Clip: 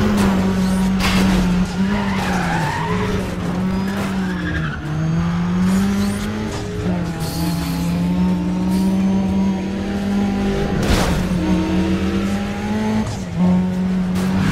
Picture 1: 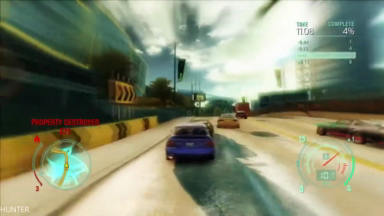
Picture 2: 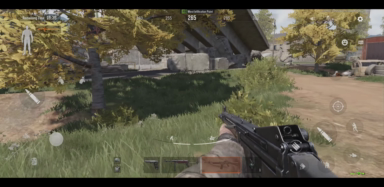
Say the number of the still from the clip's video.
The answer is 1